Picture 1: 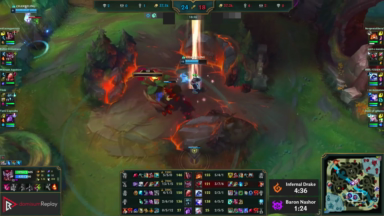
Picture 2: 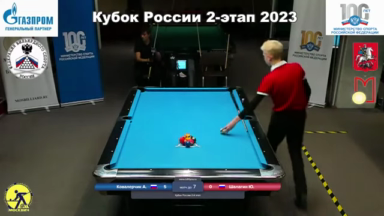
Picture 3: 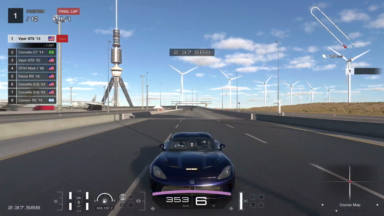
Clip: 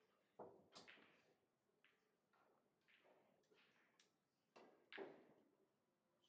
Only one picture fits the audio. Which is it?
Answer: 2